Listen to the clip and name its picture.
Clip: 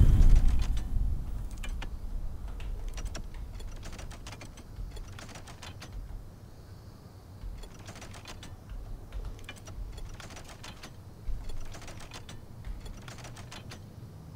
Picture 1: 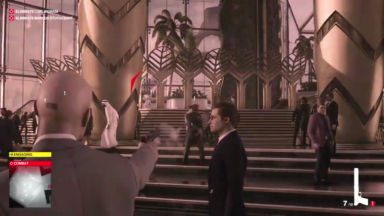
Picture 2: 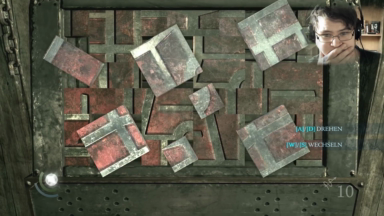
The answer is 2